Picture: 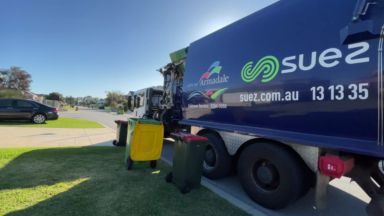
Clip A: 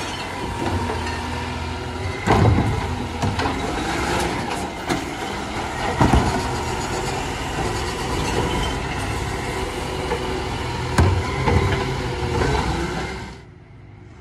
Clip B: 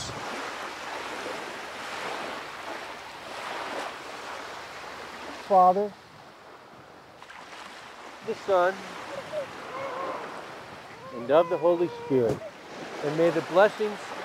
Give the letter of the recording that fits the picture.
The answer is A